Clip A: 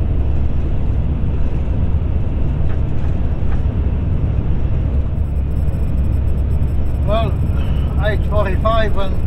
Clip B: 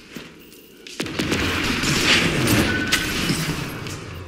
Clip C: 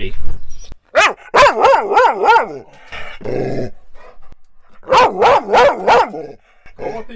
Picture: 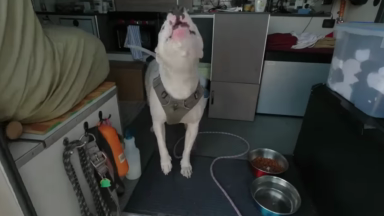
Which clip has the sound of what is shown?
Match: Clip C